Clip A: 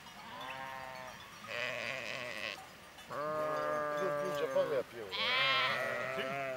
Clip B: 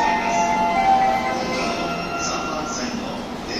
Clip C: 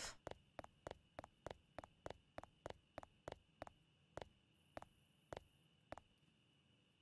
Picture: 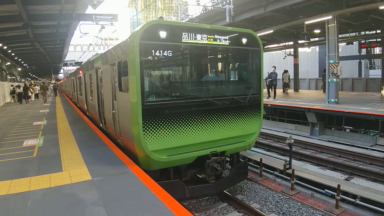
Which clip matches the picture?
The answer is B